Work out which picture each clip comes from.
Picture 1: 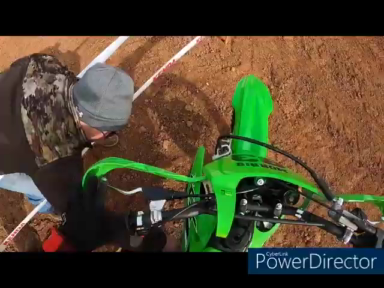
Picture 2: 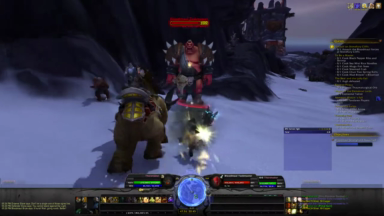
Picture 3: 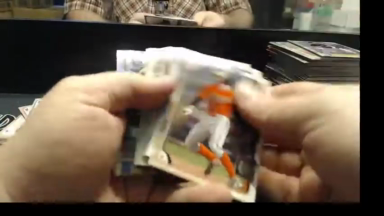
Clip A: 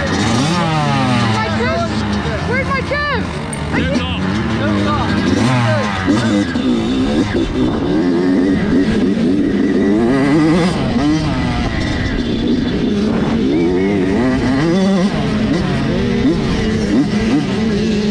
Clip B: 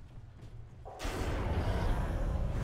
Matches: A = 1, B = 2